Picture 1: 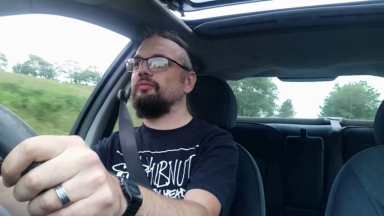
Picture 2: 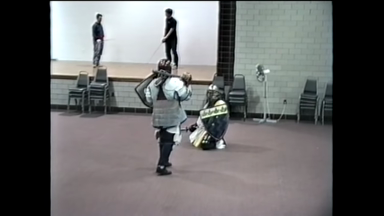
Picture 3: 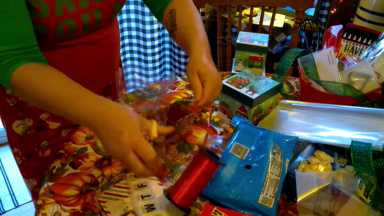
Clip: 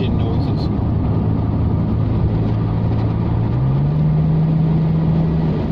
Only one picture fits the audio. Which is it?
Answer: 1